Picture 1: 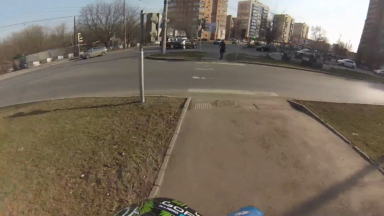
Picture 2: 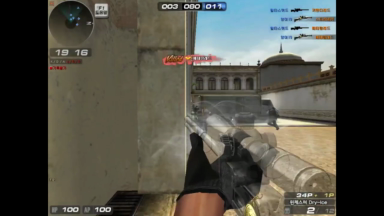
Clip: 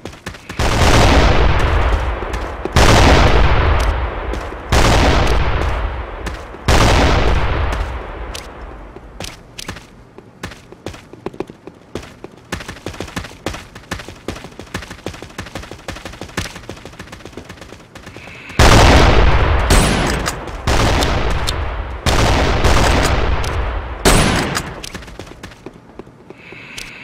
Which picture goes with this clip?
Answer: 2